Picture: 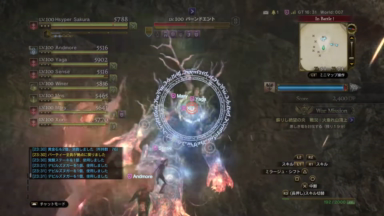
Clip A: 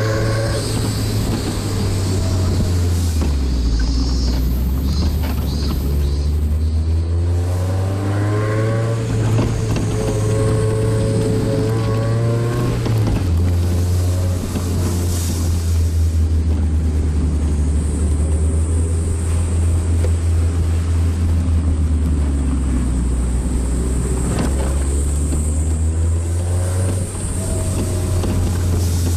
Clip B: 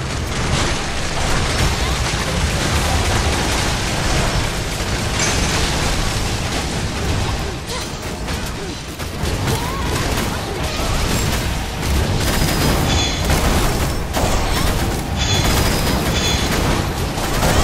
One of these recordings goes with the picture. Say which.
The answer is B